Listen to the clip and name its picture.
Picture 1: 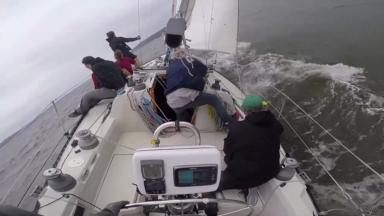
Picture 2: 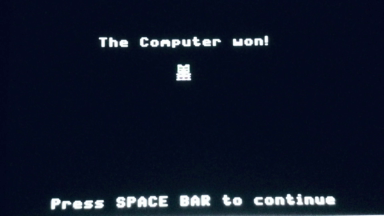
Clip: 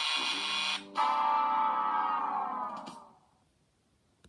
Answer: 2